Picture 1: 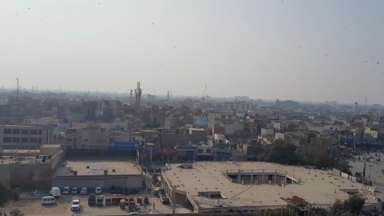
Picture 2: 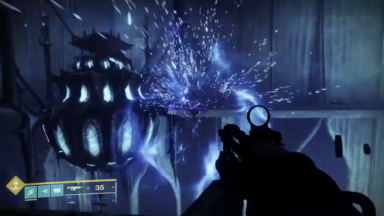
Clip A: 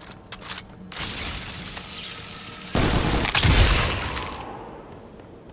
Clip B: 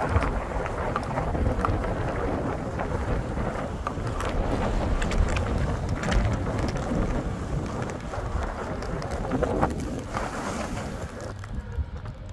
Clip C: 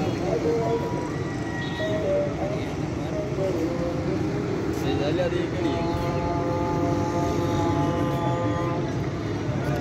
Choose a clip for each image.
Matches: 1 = C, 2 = A